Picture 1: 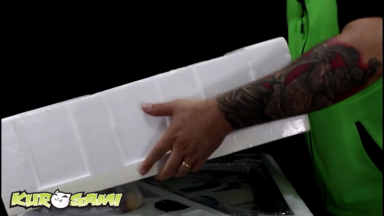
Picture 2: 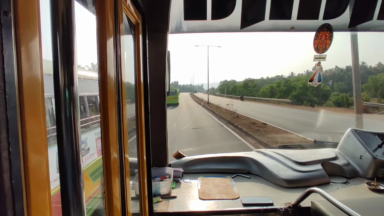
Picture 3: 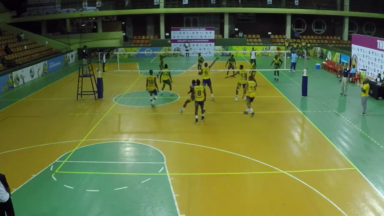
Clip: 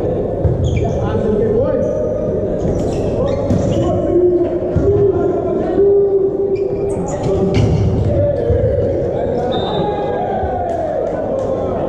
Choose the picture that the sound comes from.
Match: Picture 3